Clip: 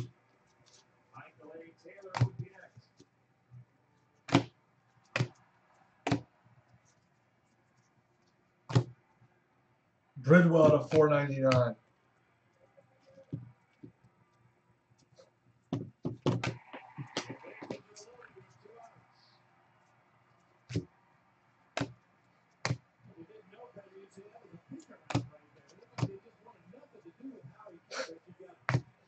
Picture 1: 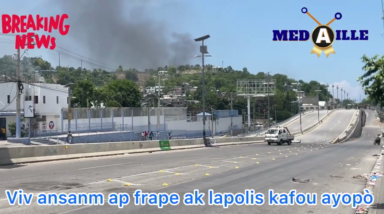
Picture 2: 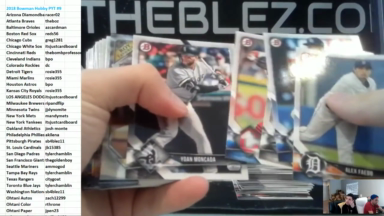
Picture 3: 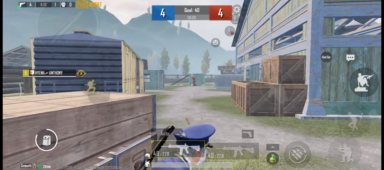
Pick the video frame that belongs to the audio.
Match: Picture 2